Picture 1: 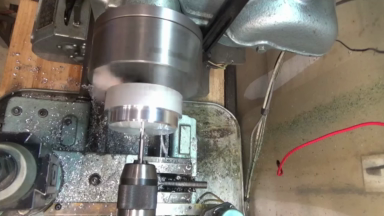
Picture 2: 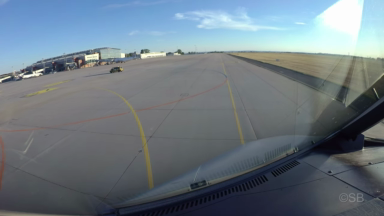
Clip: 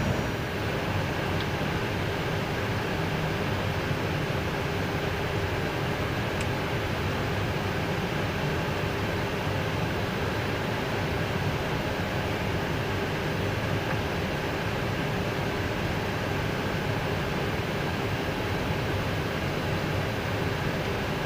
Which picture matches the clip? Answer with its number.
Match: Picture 2